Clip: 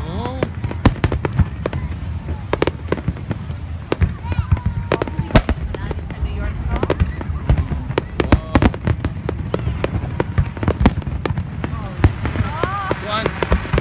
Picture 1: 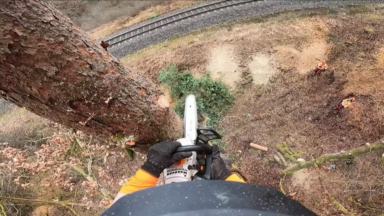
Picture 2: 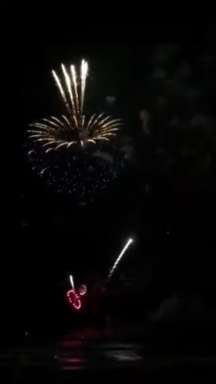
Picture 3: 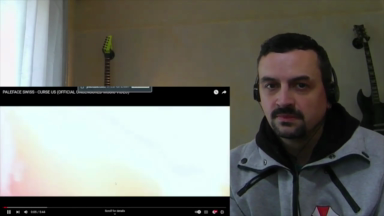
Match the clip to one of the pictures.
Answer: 2